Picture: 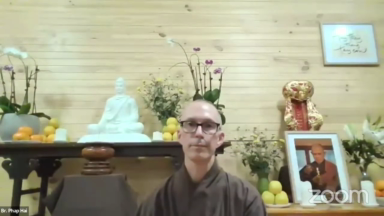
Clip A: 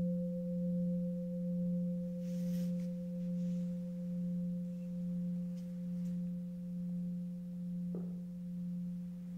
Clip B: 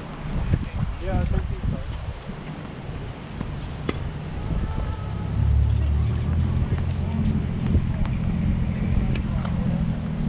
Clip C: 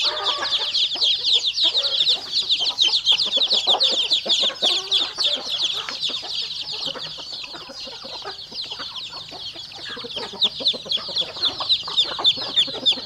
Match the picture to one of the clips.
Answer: A